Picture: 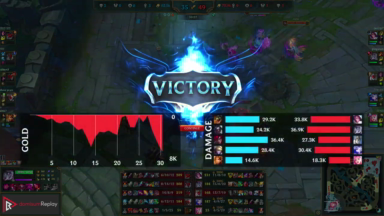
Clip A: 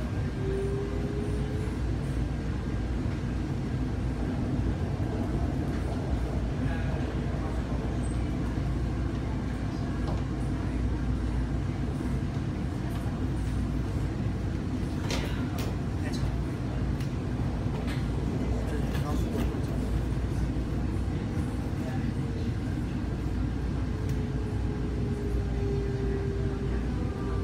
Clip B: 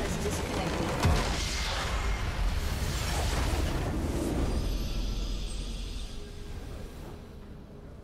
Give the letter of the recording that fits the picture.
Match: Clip B